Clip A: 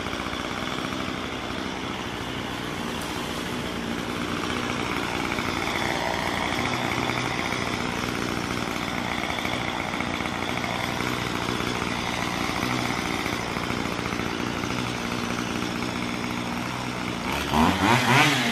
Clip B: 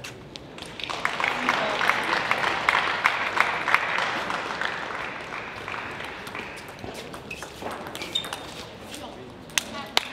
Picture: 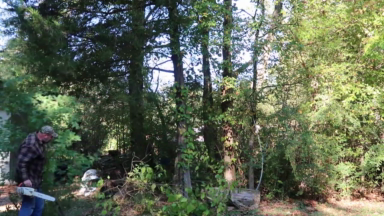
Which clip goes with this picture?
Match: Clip A